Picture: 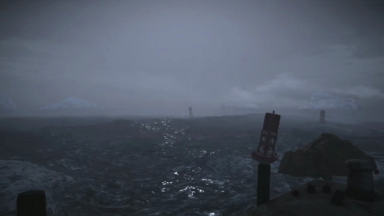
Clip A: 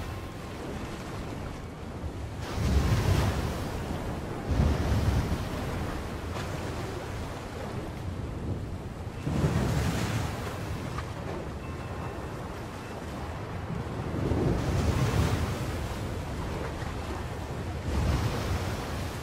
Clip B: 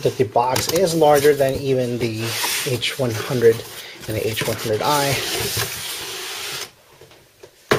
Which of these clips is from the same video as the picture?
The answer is A